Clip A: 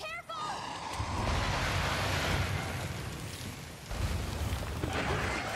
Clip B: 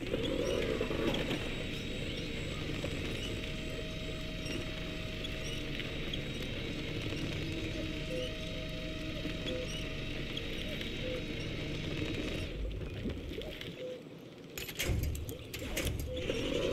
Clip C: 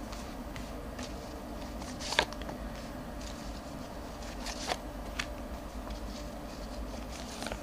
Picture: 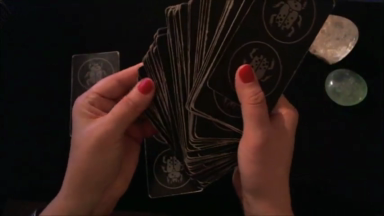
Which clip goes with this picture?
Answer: C